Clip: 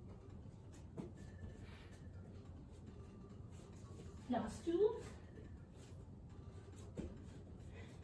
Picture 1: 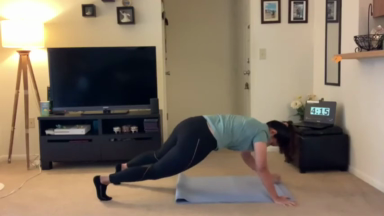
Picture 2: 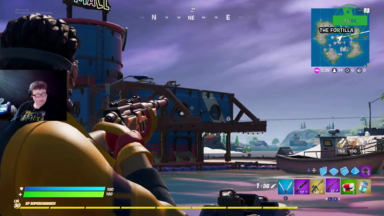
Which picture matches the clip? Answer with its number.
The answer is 1